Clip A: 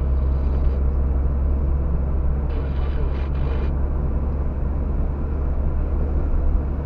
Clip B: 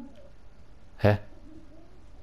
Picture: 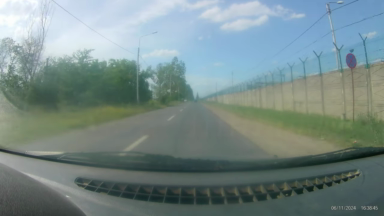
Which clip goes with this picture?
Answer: A